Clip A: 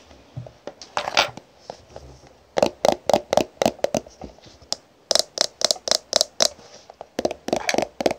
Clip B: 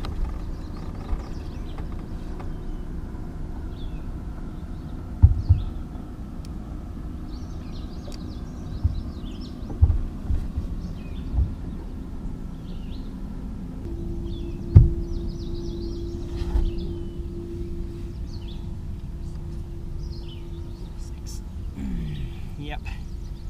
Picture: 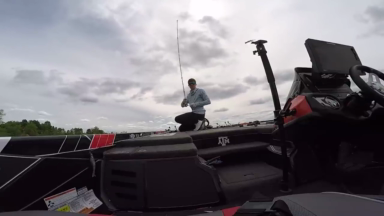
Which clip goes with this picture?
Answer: B